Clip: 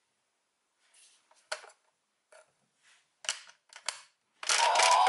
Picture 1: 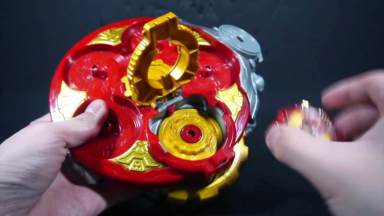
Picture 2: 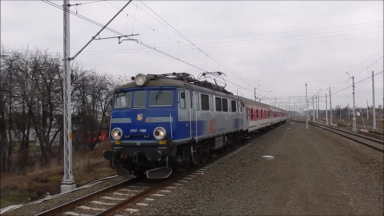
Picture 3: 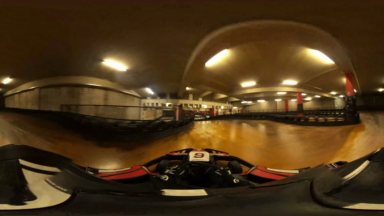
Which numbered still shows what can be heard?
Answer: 1